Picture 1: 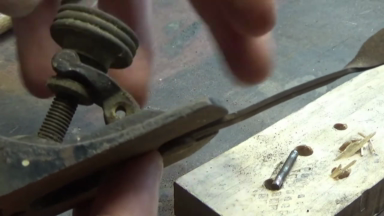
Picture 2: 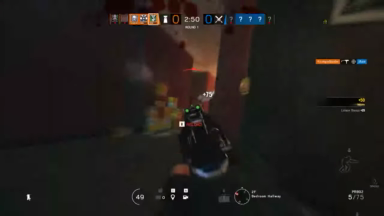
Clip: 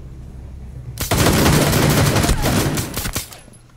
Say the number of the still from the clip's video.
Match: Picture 2